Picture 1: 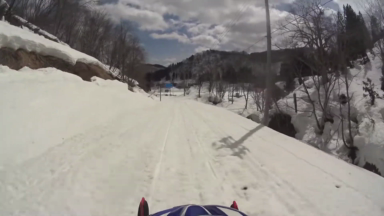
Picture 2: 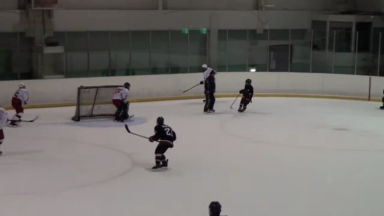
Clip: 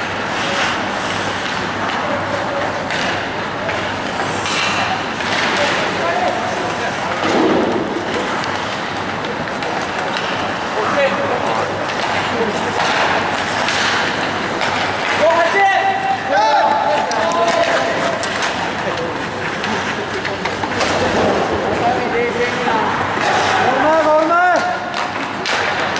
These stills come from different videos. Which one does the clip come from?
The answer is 2